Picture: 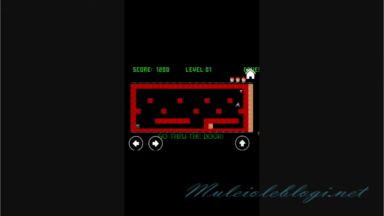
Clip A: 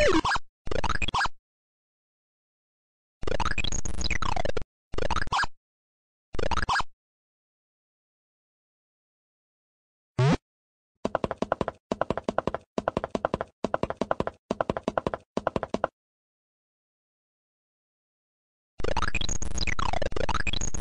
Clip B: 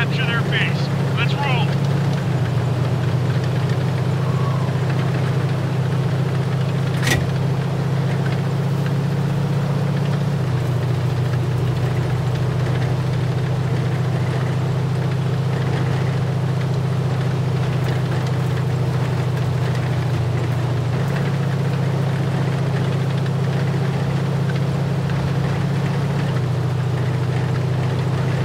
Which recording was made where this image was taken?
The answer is A